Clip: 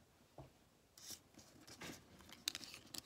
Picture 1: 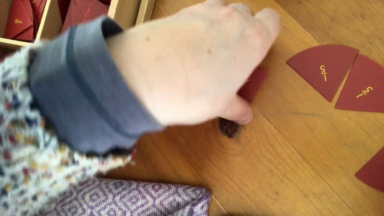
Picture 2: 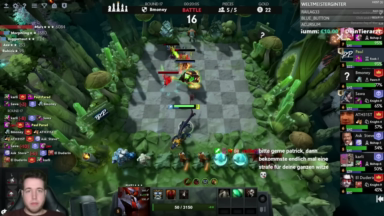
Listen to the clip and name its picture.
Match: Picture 1